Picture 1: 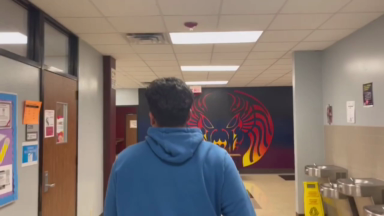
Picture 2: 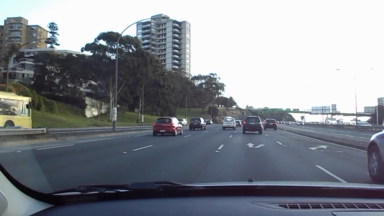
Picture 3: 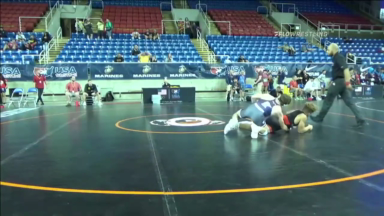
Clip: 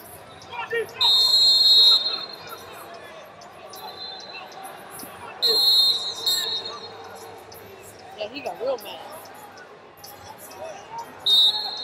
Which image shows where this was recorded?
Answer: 3